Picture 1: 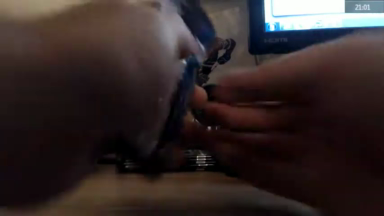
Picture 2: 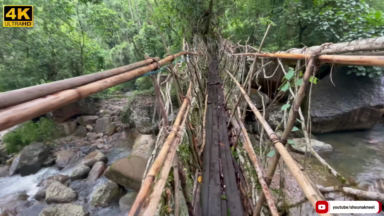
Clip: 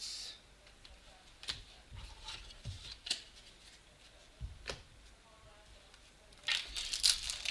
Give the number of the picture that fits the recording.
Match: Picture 1